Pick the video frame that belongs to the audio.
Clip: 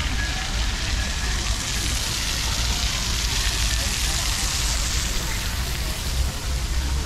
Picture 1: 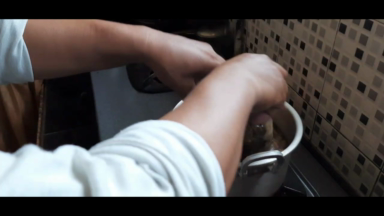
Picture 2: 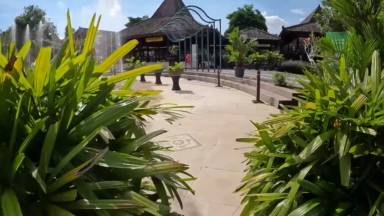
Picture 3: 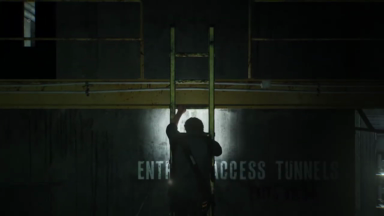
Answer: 2